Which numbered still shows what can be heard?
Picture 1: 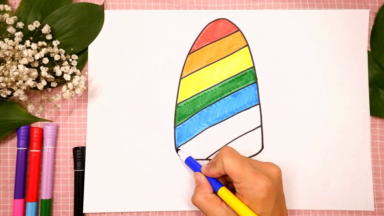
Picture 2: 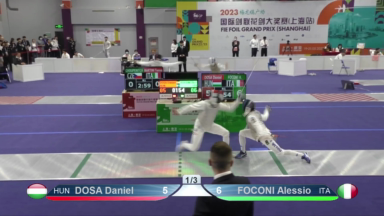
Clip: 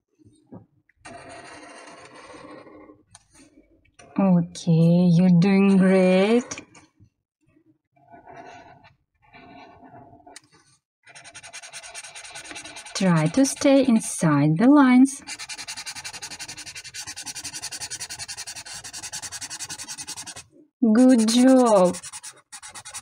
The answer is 1